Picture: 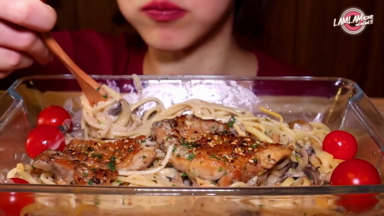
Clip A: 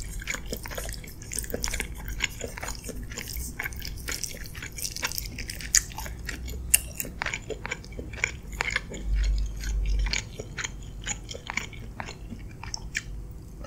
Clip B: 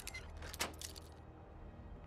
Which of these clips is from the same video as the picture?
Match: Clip A